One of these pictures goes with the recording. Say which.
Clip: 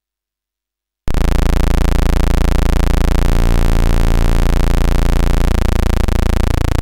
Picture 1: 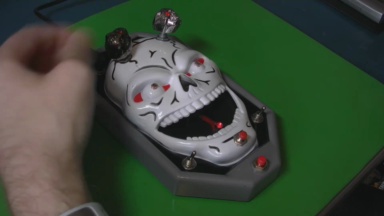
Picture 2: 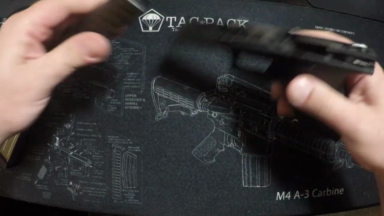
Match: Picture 1